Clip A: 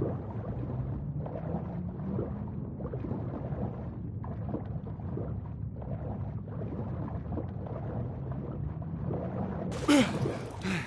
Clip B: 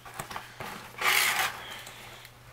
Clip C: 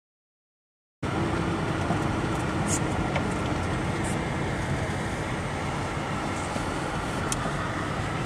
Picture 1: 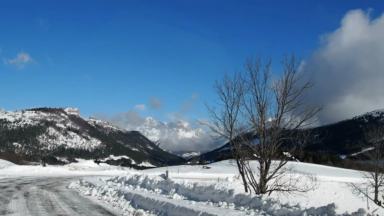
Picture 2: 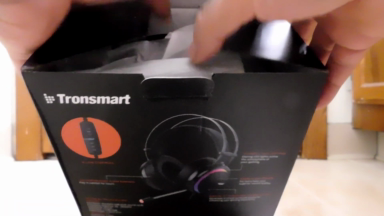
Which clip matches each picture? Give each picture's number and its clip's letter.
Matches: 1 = C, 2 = B